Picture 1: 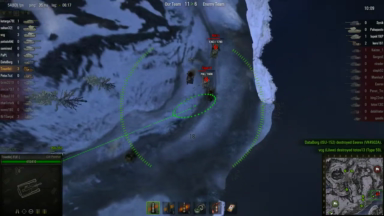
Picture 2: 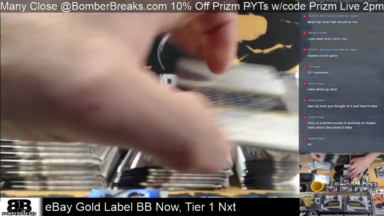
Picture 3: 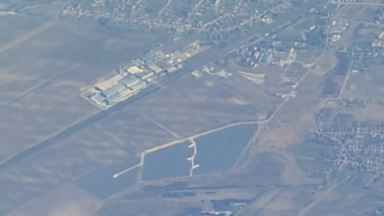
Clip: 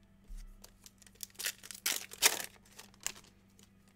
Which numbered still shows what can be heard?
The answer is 2